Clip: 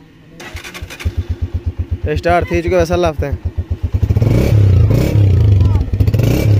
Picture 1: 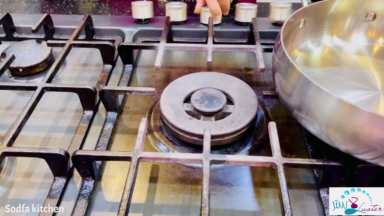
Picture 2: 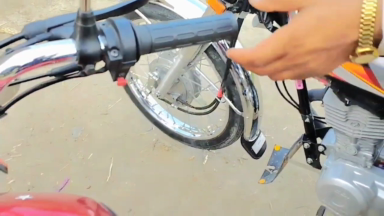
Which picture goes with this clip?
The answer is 2